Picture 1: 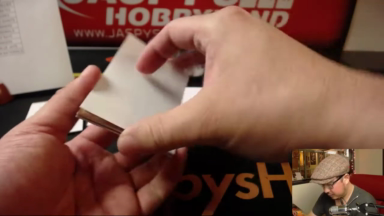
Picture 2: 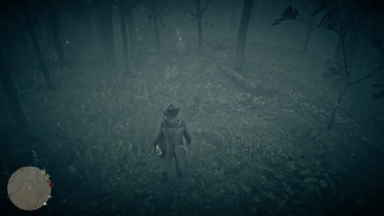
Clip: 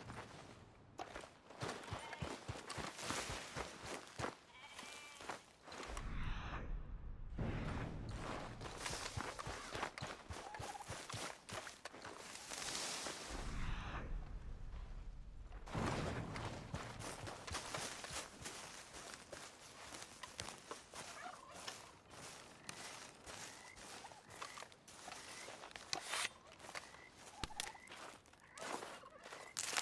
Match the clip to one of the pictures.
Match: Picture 2